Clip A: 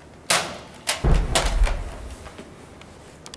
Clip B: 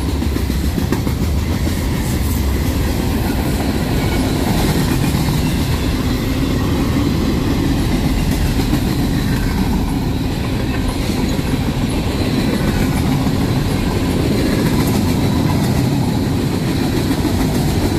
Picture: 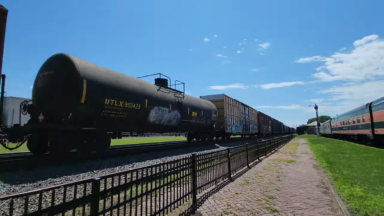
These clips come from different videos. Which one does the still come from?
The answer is B